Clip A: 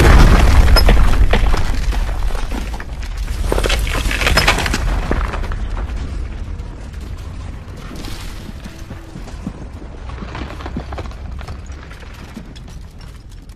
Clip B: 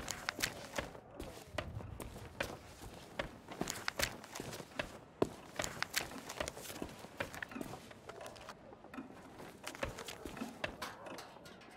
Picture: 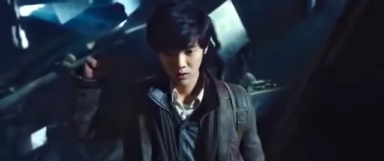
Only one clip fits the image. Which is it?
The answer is A